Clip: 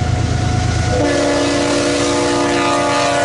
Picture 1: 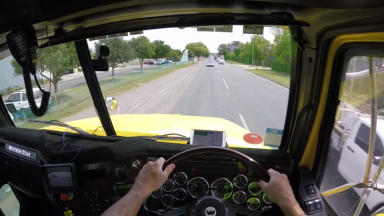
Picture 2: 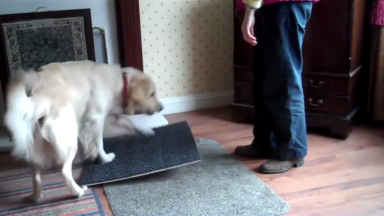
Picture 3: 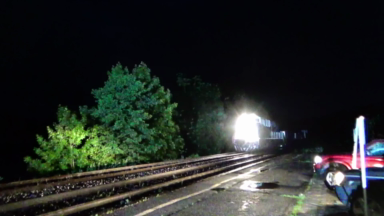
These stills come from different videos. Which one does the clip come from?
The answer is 3